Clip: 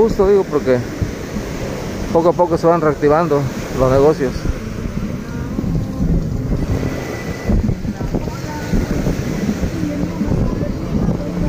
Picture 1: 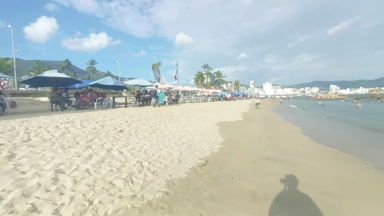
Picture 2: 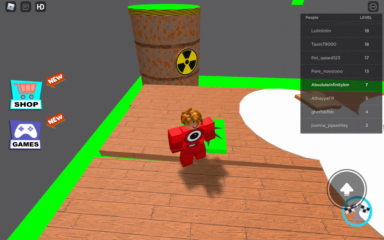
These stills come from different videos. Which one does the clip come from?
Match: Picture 1